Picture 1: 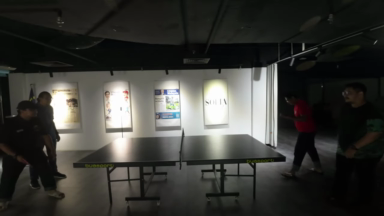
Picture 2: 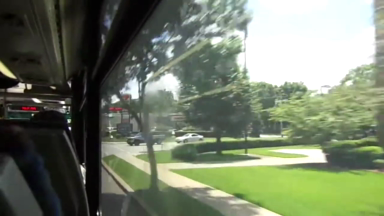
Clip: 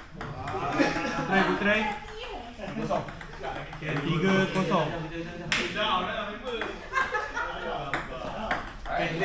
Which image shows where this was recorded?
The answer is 1